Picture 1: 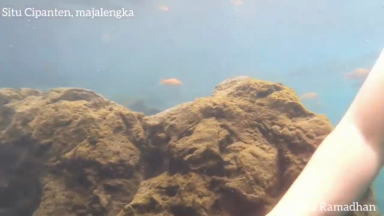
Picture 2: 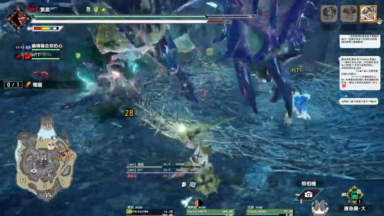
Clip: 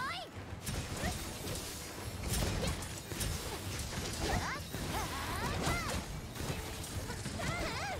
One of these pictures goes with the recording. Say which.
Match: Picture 2